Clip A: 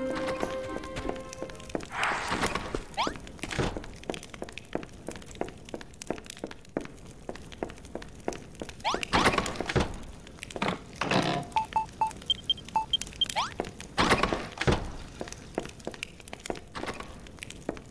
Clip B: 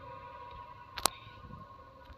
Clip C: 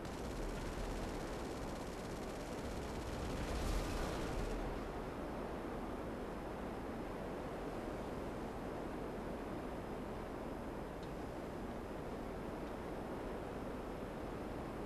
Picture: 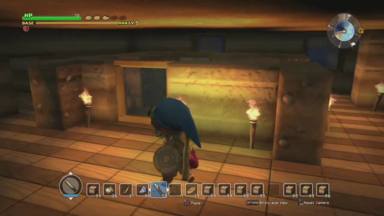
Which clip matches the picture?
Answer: A